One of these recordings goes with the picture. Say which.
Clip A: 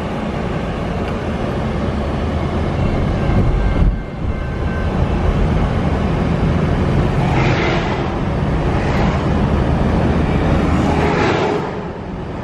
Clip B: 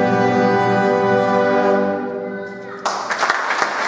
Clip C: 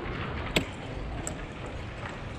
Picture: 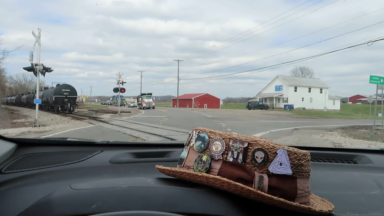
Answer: A